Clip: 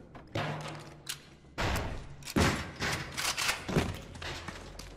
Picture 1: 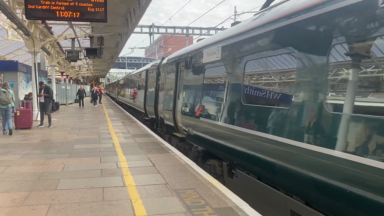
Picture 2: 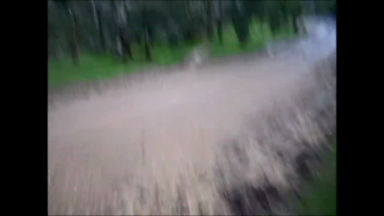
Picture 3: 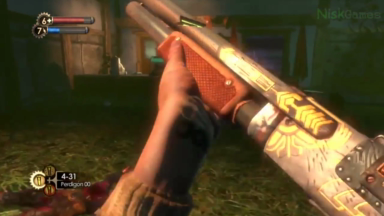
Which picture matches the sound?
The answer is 3